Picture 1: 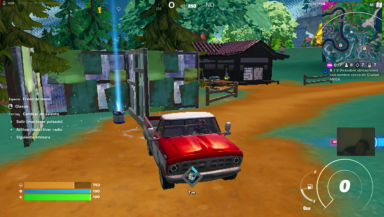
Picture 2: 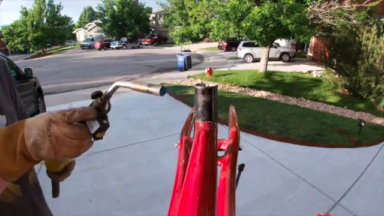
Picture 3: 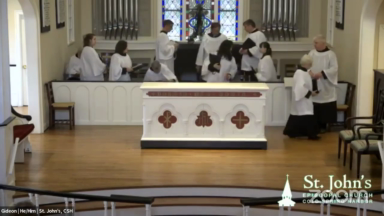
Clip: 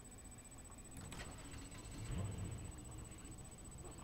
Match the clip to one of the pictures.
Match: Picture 1